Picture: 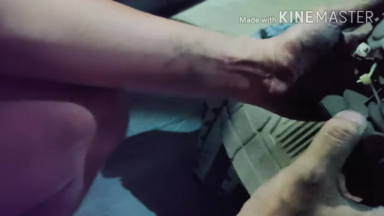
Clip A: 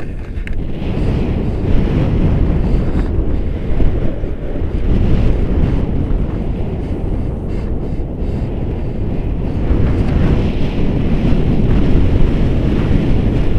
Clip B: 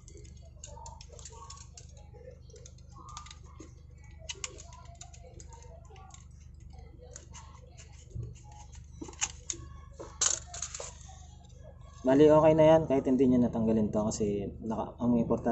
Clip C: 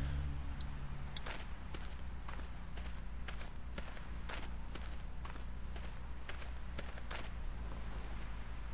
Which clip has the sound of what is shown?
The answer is B